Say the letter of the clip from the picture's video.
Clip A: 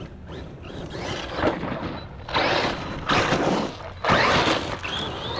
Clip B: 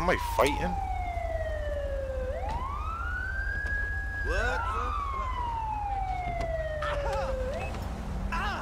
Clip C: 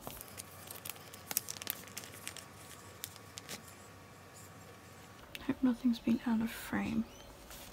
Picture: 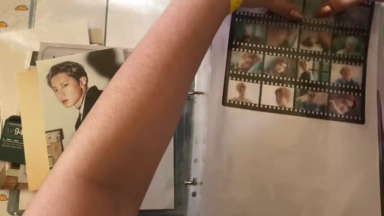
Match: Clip C